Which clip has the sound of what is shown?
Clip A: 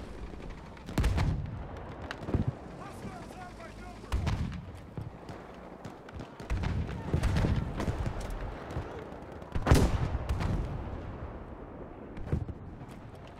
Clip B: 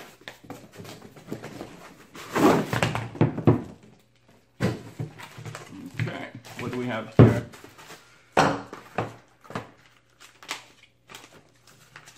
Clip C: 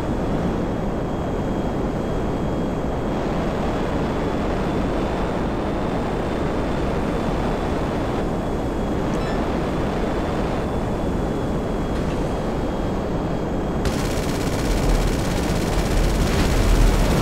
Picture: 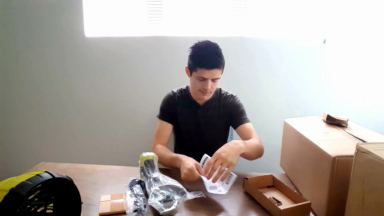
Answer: B